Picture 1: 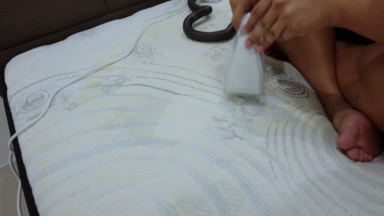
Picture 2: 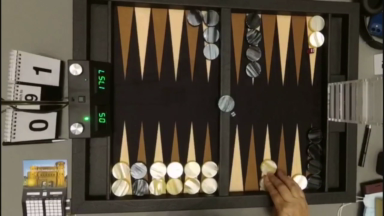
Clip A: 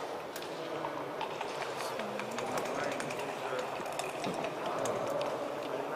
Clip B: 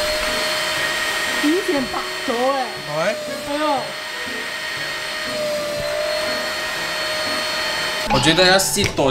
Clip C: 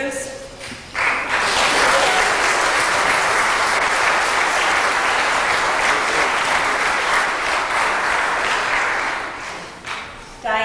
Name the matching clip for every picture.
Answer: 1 B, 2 A